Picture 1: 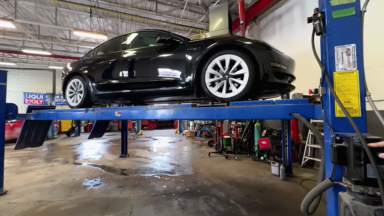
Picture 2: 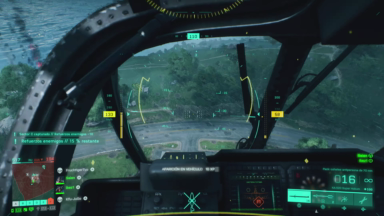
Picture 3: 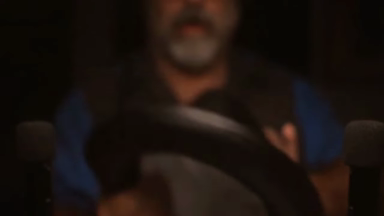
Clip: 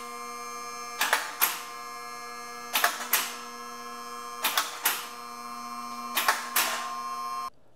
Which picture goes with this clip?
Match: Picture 1